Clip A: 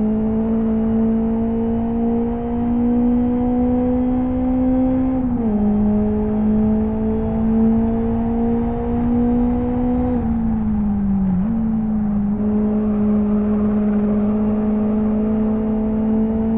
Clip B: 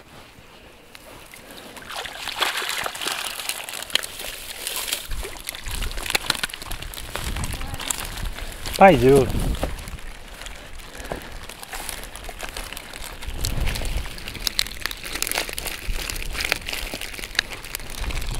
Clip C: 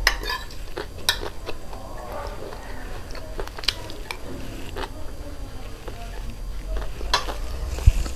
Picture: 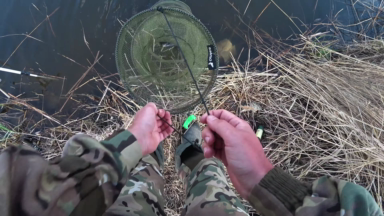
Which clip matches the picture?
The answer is B